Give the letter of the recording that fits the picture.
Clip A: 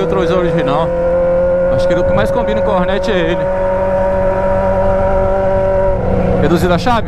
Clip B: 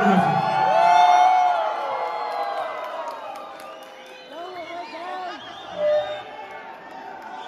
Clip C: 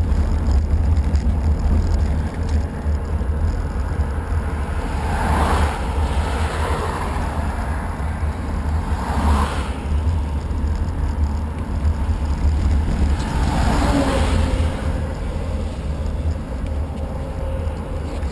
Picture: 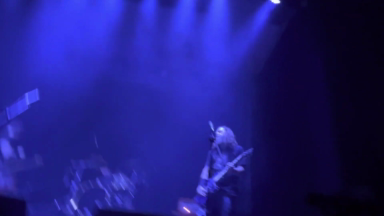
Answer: B